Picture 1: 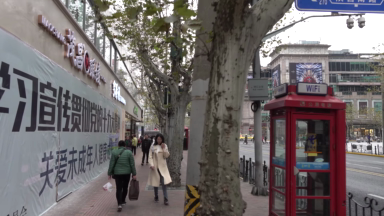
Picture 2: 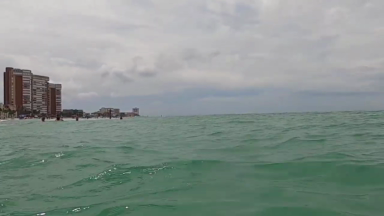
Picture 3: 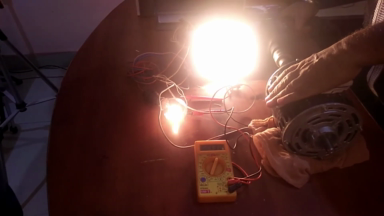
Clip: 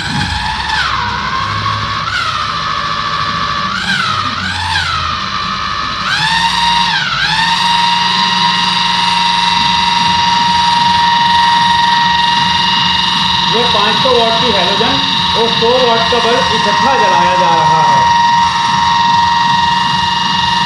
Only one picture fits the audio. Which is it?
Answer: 3